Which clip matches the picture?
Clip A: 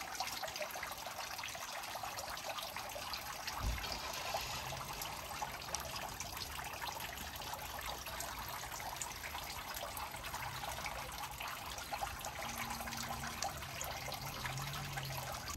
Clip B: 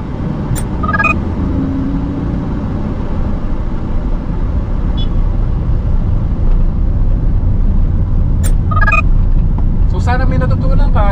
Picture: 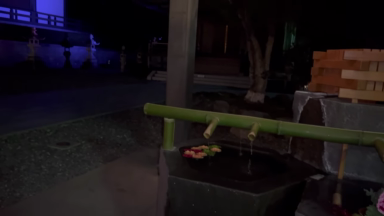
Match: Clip A